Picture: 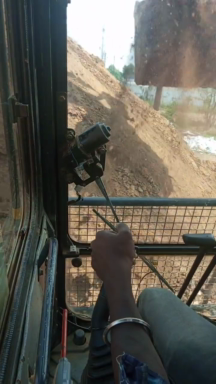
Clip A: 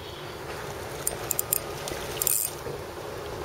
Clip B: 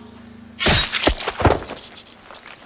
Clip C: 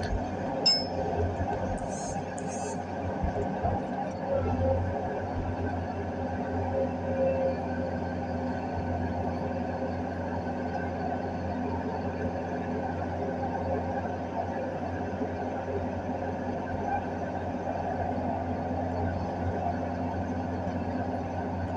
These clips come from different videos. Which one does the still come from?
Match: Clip C